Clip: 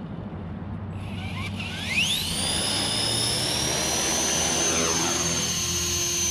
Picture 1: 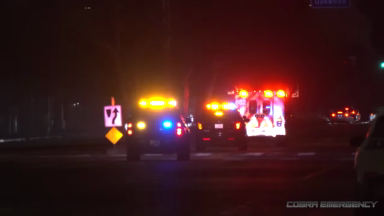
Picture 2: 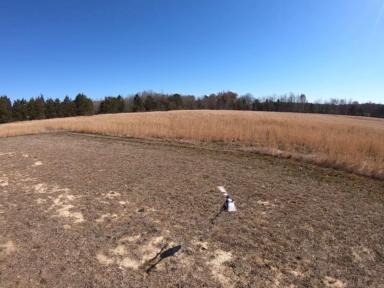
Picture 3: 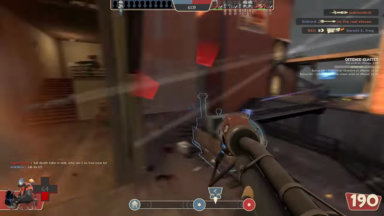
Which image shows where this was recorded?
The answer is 2